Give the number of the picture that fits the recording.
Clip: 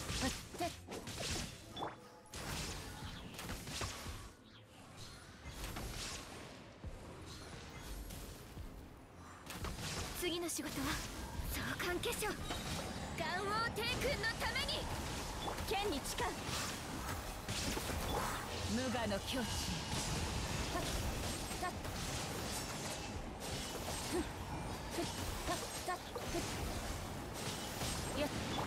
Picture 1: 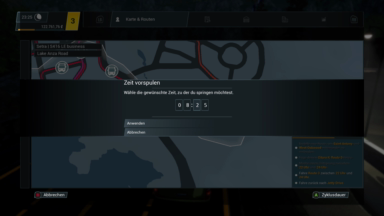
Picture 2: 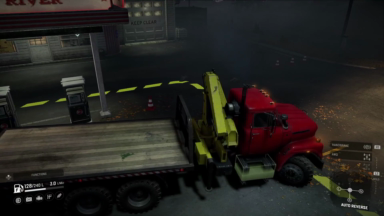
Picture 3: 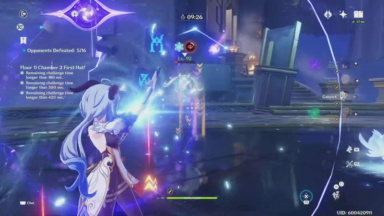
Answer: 3